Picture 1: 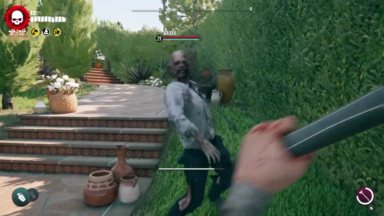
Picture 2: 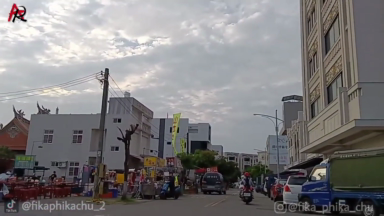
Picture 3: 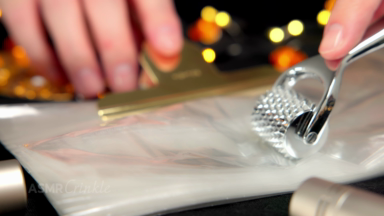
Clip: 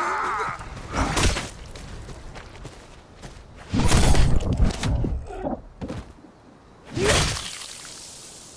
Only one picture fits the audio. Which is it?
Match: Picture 1